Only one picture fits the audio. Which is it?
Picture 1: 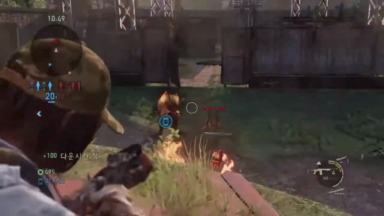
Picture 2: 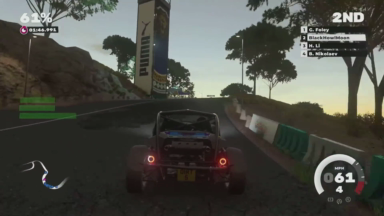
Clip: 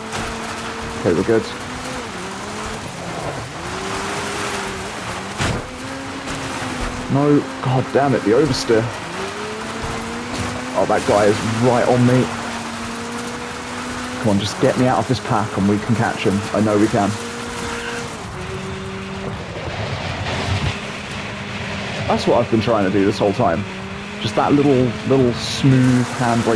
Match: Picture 2